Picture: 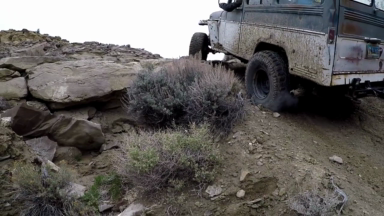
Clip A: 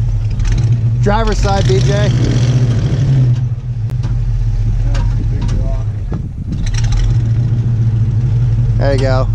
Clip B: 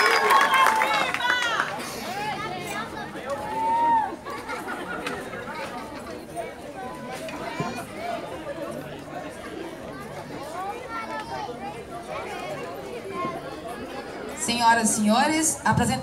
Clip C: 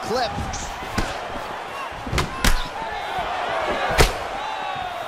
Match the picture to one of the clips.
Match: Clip A